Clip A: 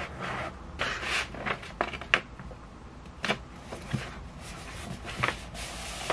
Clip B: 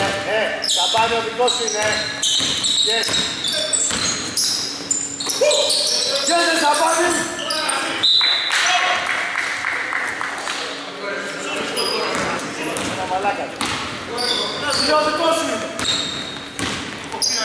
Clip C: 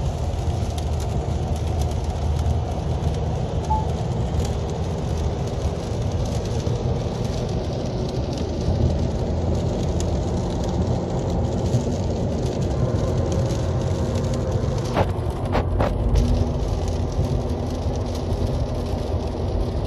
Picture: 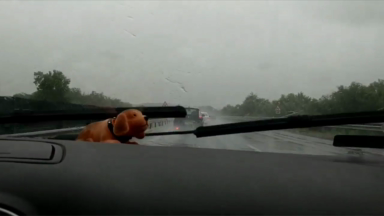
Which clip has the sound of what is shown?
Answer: C